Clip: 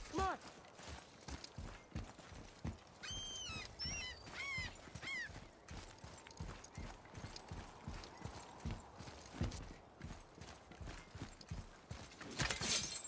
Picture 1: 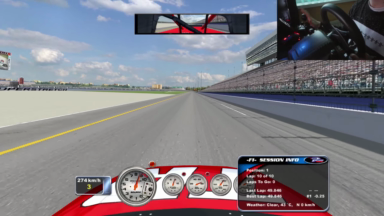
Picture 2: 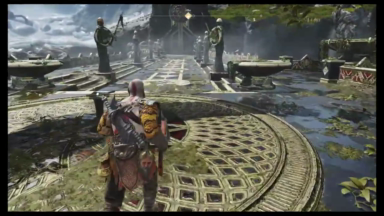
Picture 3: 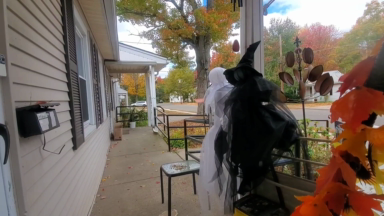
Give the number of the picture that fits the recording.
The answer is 2